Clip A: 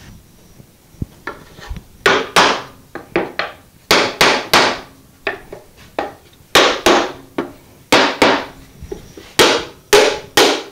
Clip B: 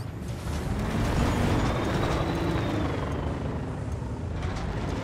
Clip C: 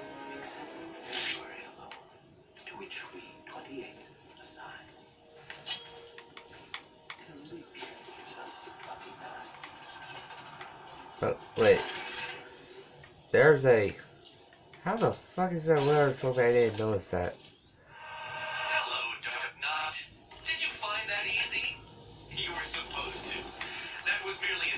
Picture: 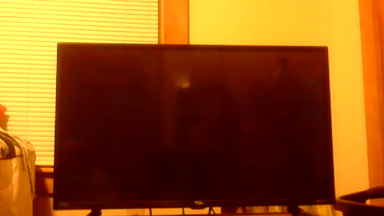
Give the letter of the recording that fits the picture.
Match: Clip C